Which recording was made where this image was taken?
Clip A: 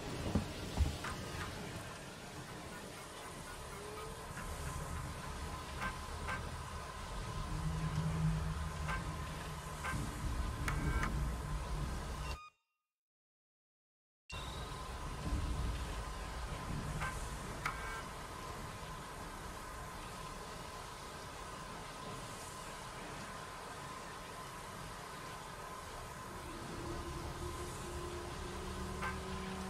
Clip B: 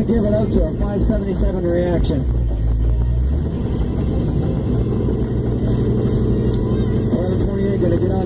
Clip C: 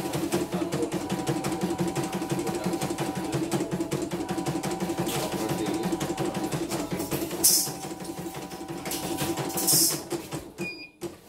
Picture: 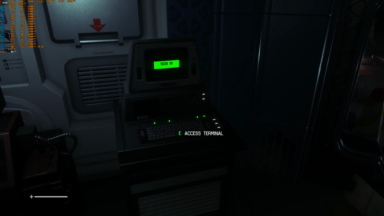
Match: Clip A